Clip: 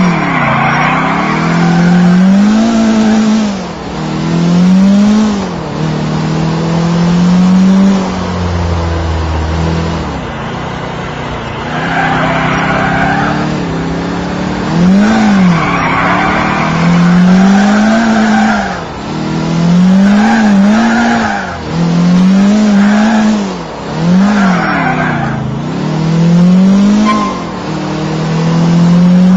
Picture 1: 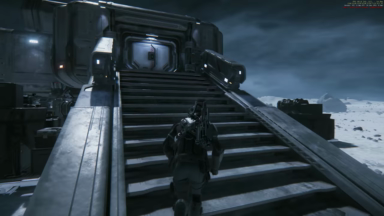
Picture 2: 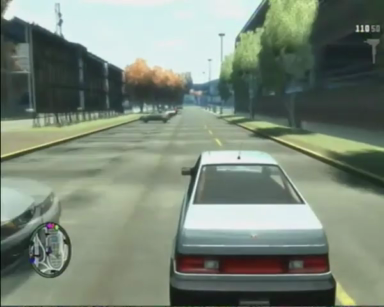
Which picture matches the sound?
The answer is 2